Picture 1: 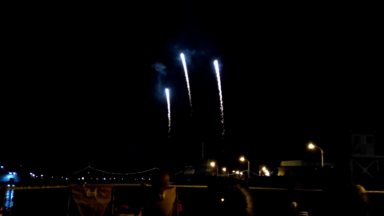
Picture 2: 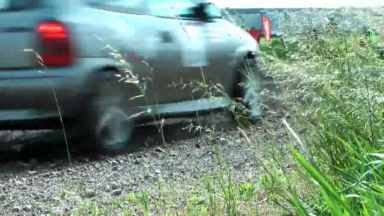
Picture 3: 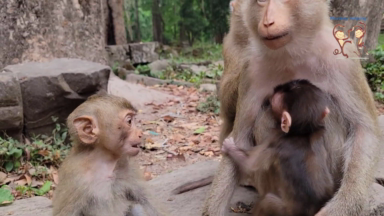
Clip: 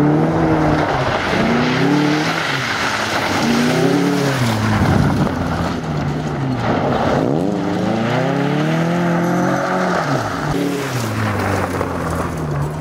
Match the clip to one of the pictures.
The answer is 2